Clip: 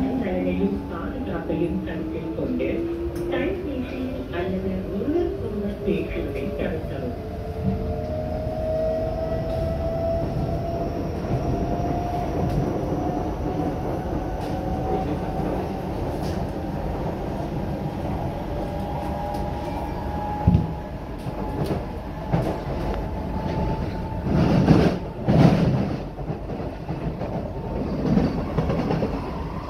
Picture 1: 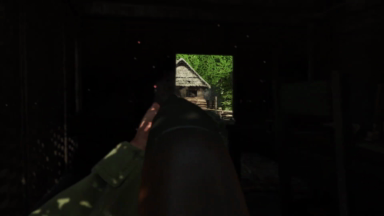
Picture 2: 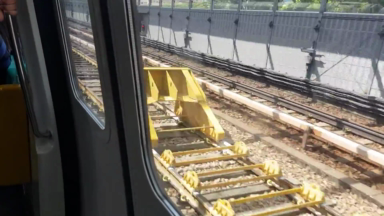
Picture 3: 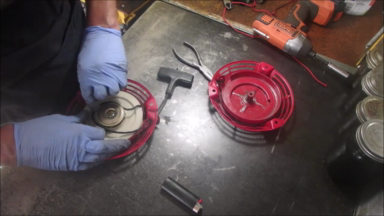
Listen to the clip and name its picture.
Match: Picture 2